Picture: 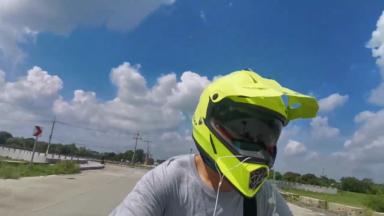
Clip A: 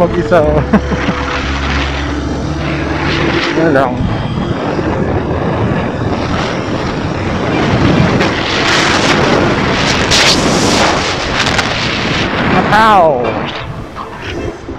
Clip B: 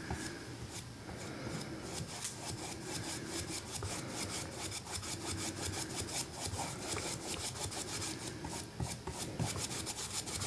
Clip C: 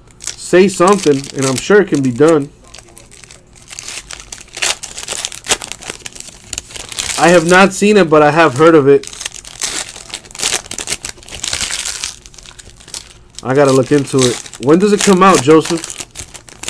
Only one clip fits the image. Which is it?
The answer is A